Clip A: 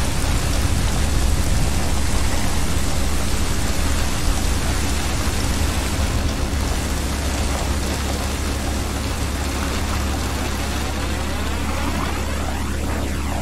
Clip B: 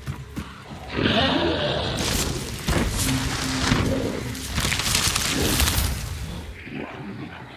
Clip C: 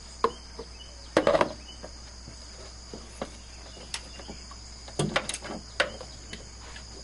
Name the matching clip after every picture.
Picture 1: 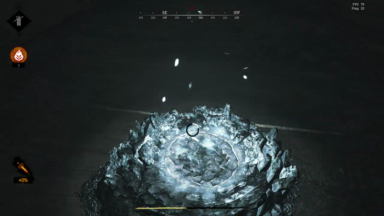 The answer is B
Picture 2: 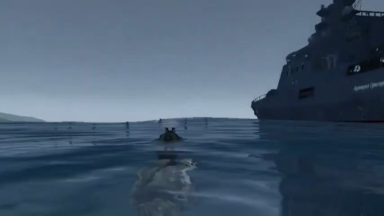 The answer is A